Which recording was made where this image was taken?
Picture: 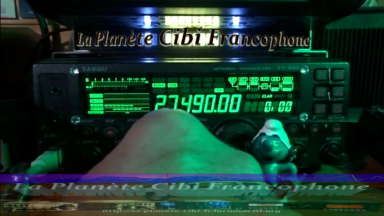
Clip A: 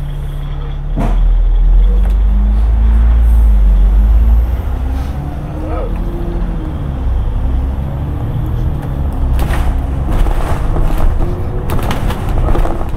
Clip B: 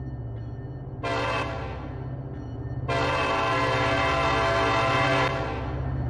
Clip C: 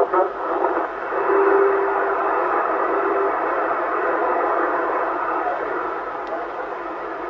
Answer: C